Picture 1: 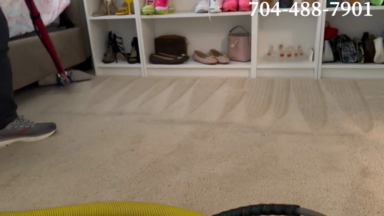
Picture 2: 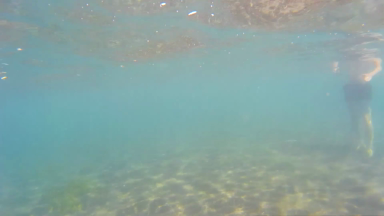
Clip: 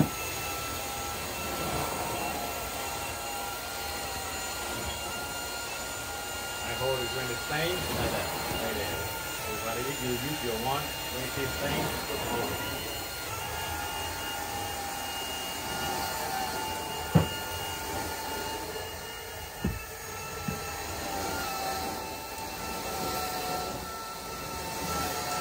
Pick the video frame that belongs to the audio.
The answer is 1